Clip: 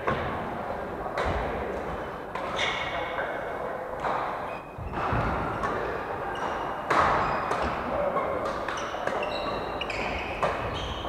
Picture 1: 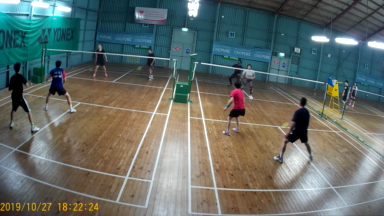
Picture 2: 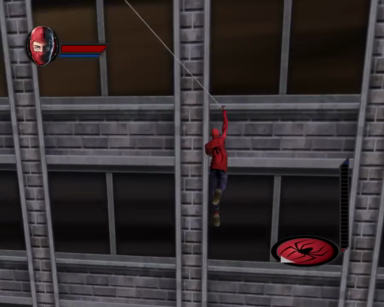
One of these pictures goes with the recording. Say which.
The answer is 1